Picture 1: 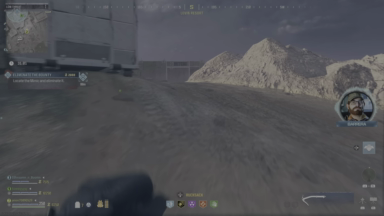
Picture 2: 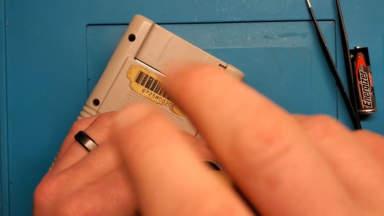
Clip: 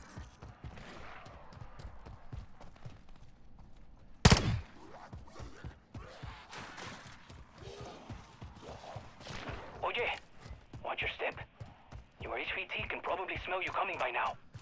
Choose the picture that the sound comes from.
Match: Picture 1